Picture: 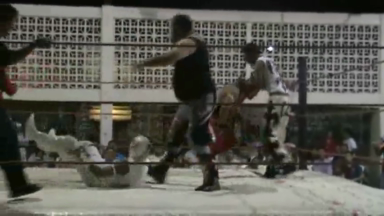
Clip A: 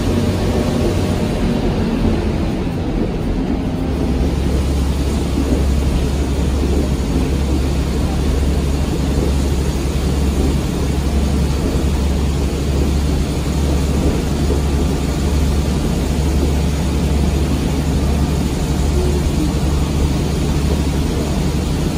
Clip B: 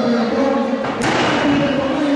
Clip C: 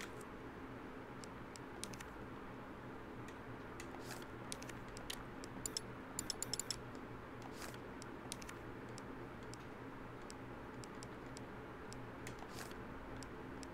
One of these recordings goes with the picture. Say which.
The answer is B